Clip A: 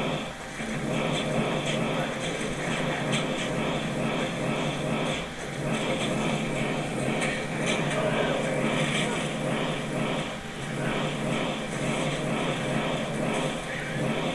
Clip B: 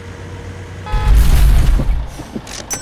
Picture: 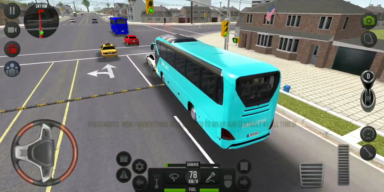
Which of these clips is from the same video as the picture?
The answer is B